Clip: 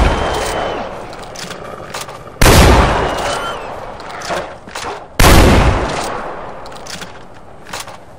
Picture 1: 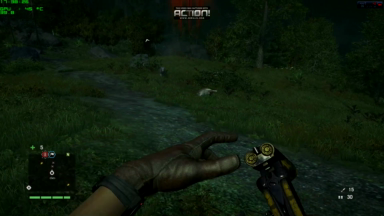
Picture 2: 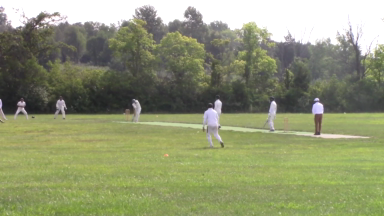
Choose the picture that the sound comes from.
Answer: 1